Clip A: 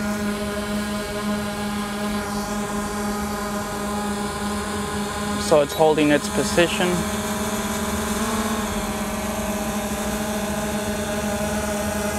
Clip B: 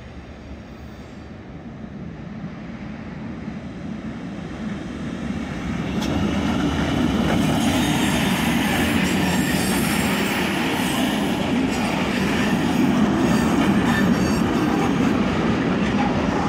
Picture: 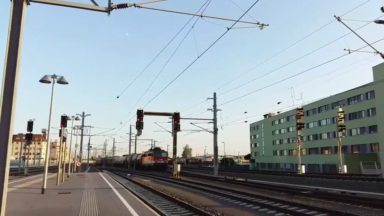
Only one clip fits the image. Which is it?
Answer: B